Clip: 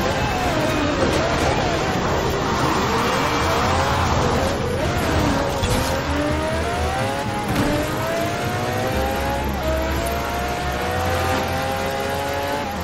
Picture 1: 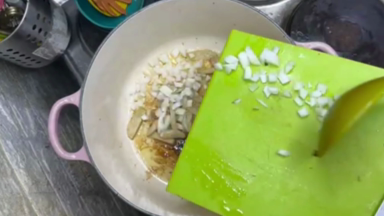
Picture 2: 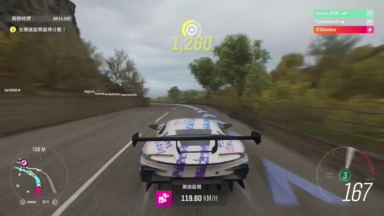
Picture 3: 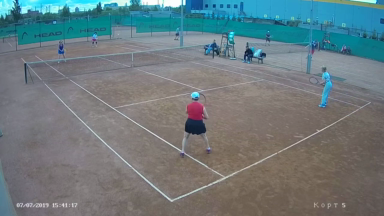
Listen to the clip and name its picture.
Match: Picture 2